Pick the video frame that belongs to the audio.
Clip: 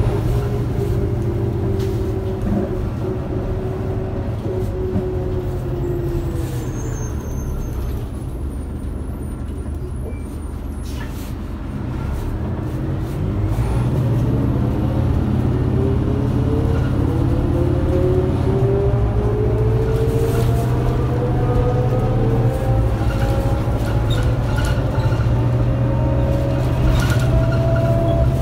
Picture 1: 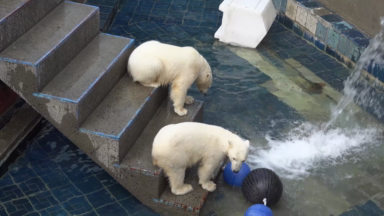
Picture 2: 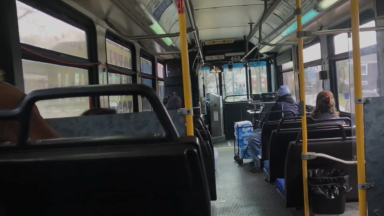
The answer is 2